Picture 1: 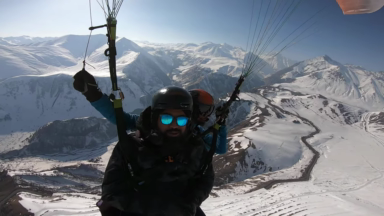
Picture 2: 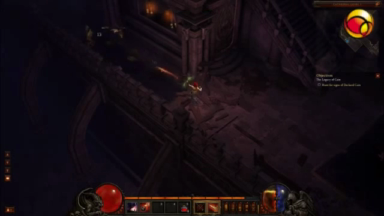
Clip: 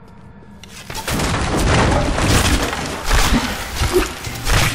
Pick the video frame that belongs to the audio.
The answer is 2